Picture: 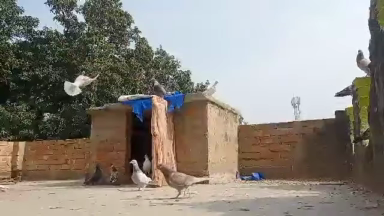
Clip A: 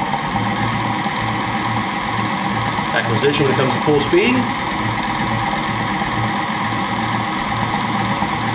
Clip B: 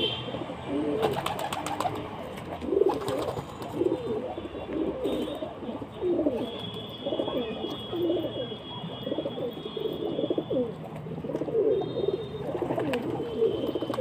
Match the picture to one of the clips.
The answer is B